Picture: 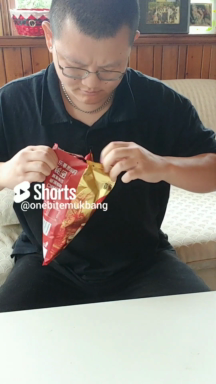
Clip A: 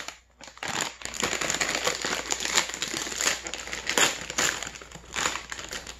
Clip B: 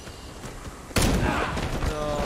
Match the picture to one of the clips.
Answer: A